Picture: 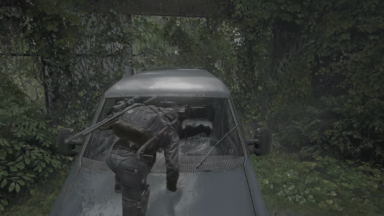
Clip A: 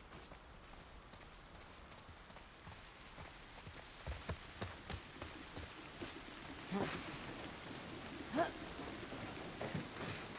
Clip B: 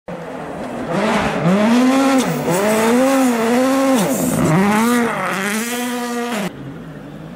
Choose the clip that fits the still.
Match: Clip A